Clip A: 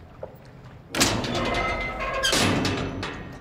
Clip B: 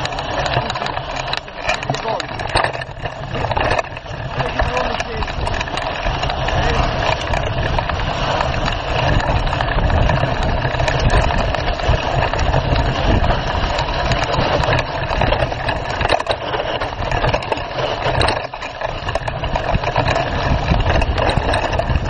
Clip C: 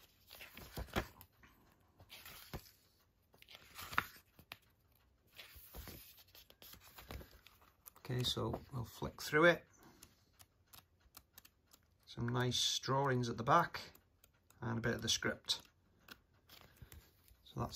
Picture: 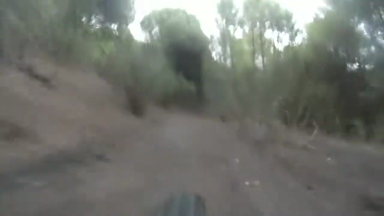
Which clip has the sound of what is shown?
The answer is B